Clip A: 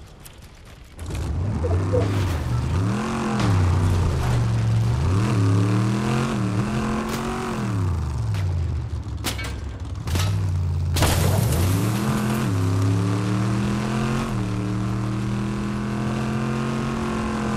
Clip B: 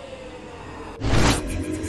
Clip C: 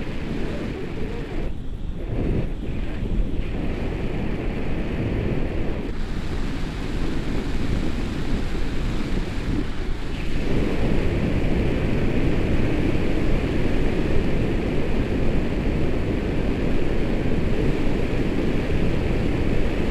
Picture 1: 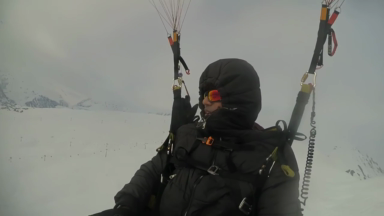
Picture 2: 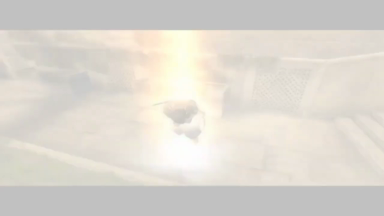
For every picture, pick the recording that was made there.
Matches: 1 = C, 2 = B